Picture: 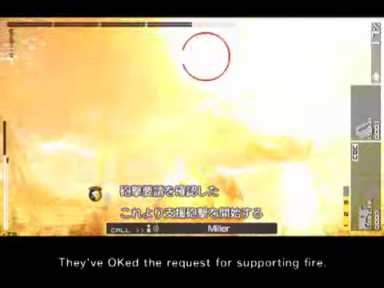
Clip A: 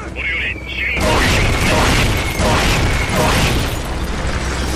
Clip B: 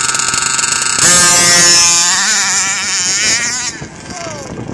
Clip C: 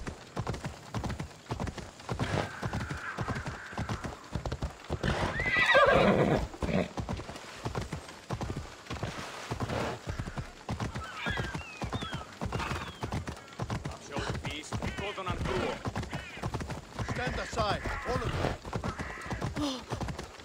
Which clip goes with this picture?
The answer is A